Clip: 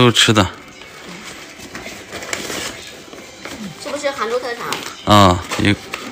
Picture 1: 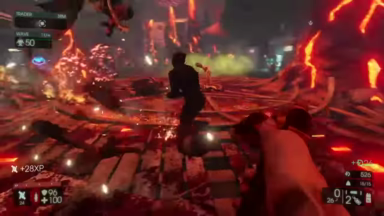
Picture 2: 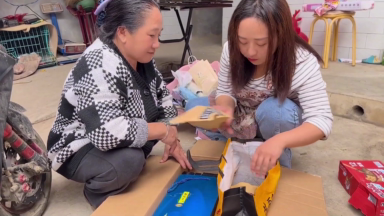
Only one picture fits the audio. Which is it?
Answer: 2